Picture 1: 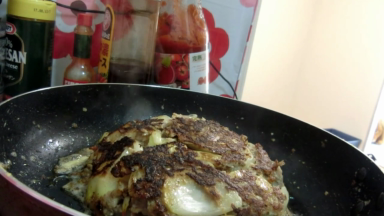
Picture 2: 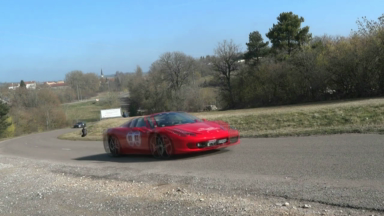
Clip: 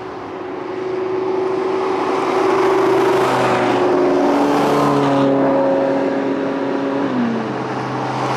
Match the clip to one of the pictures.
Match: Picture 2